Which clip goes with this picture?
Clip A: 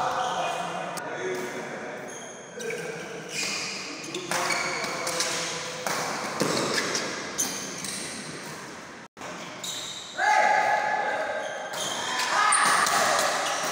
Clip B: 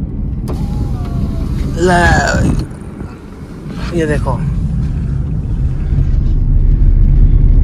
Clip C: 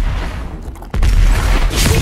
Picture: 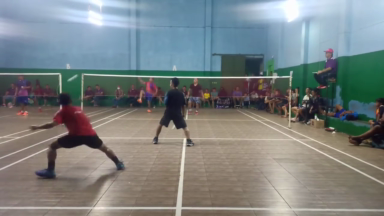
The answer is A